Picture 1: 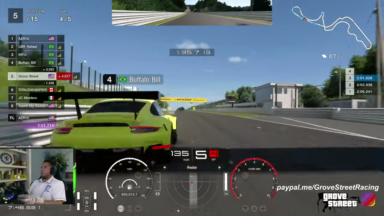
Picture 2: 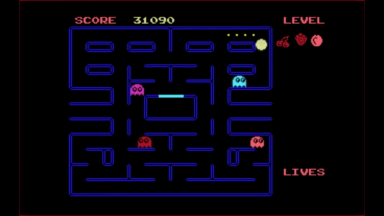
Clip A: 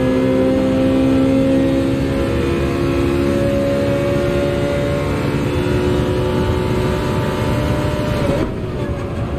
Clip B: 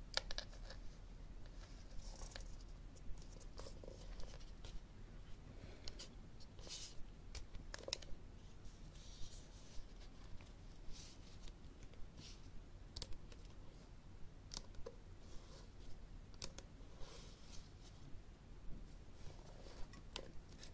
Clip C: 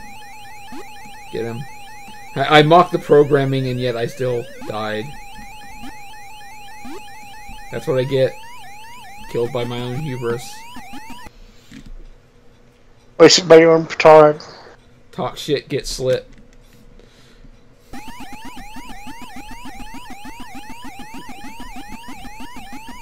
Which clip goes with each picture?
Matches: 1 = A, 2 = C